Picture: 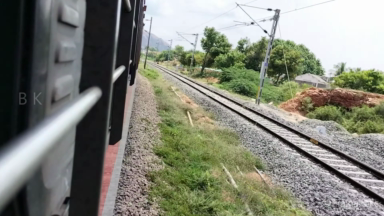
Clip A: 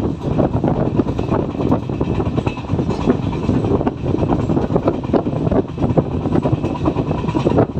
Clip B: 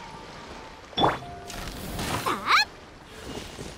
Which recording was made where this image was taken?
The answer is A